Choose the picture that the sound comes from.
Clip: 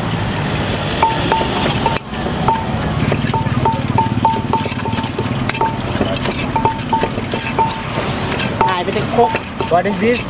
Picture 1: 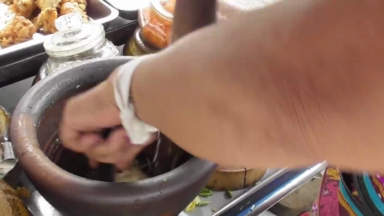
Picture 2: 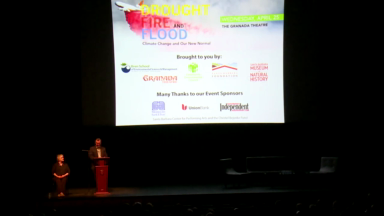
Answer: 1